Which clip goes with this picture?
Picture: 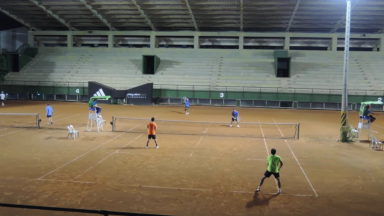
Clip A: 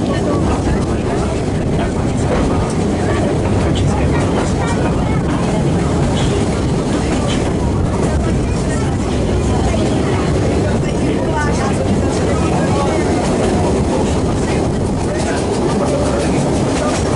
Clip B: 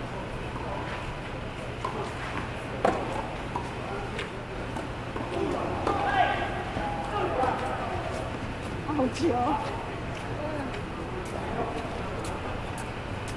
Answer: B